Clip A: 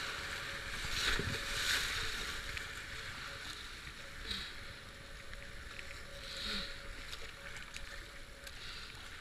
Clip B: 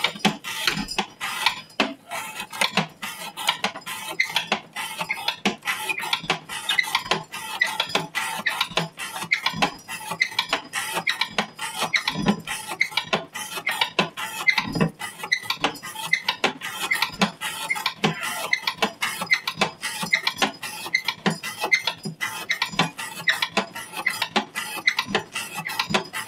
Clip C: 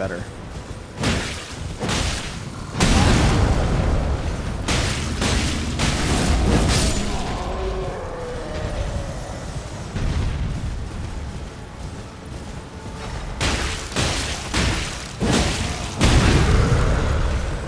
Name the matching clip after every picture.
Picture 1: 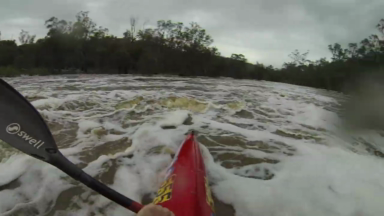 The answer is A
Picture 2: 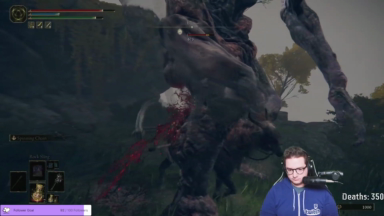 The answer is C